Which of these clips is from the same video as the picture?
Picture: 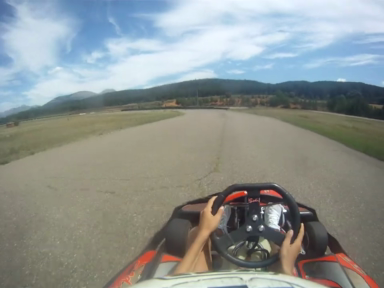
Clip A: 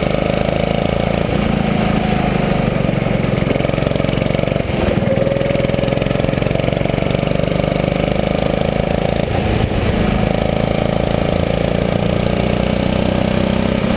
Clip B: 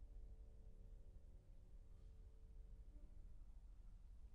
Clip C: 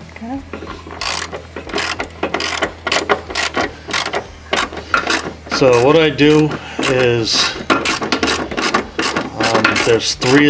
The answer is A